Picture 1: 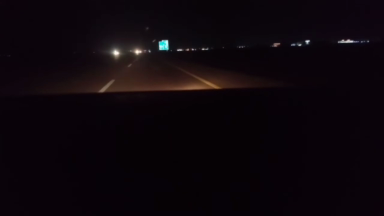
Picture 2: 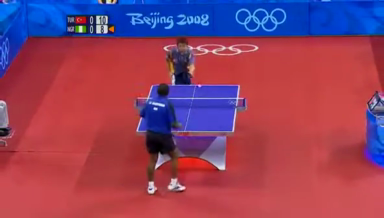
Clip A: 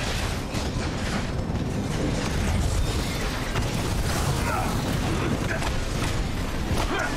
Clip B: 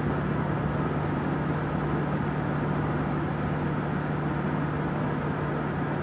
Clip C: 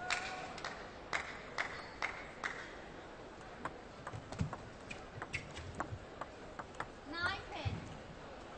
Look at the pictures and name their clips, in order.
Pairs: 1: B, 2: C